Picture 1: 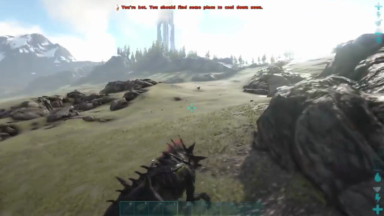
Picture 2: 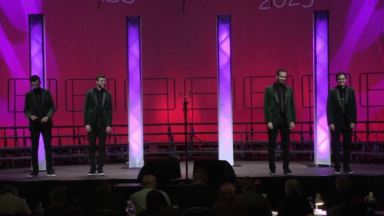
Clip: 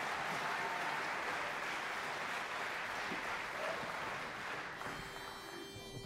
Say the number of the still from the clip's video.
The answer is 2